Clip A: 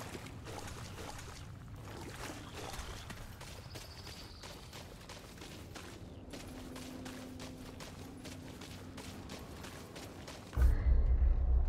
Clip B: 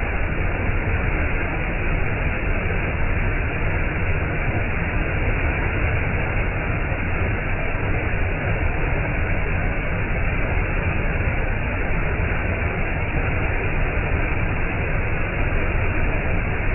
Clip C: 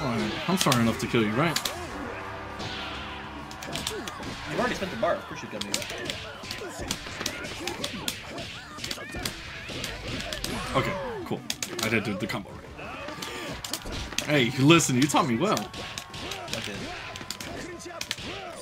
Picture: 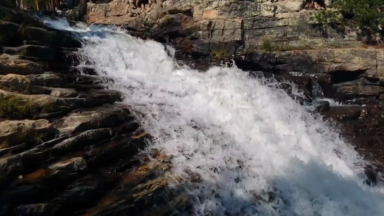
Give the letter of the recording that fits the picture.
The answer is B